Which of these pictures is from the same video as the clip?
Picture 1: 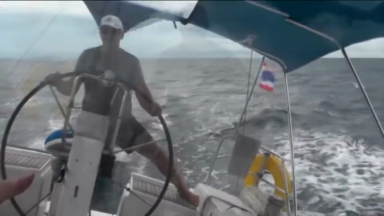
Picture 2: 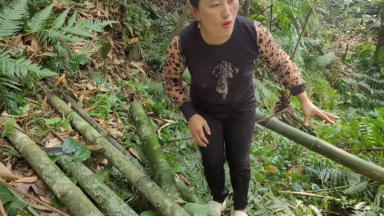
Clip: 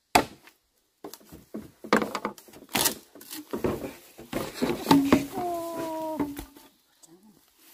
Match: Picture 2